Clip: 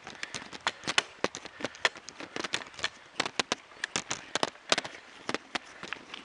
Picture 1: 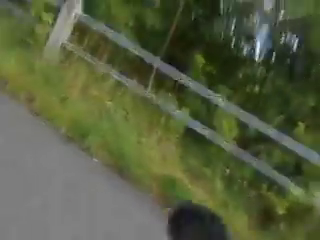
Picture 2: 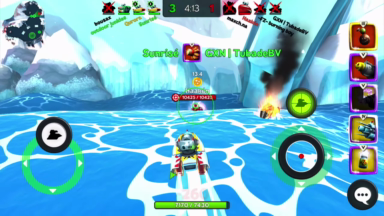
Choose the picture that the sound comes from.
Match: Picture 1